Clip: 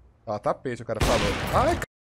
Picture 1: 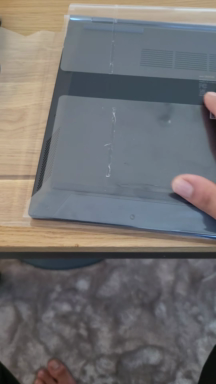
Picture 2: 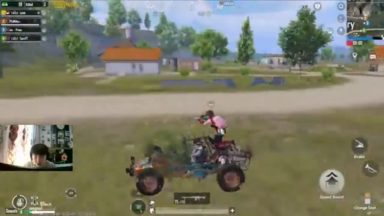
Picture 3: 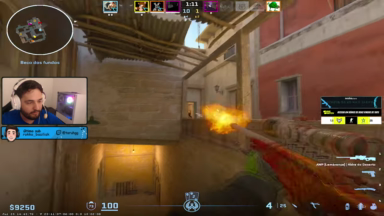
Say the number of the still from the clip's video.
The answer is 3